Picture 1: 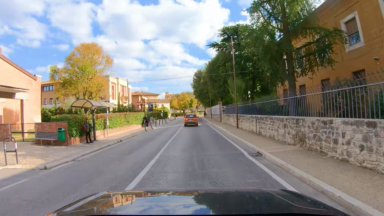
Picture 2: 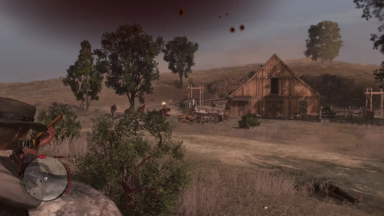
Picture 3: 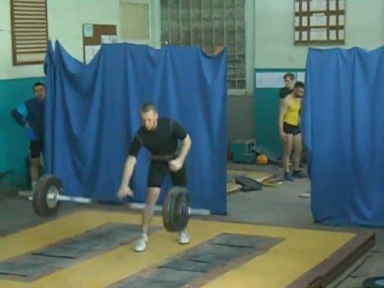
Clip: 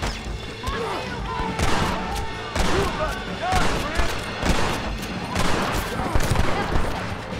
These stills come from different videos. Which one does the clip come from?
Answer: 2